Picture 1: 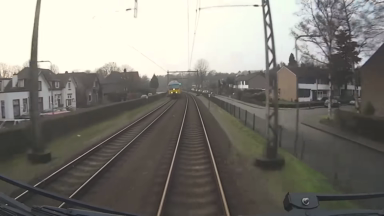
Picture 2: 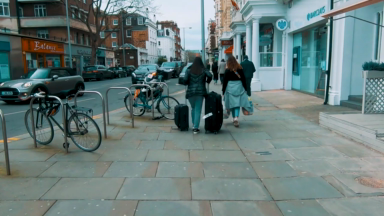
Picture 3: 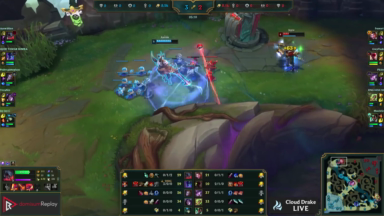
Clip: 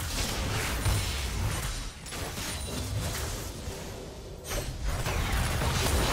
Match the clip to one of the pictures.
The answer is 3